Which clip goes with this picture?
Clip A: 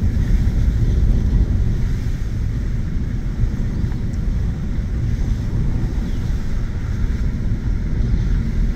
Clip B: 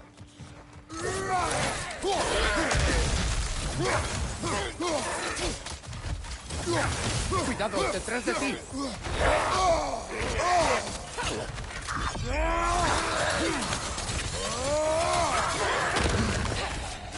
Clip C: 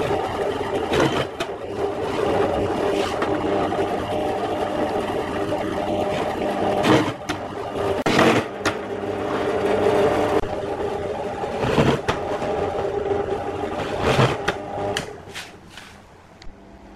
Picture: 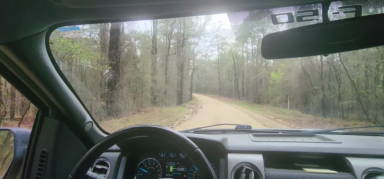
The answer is A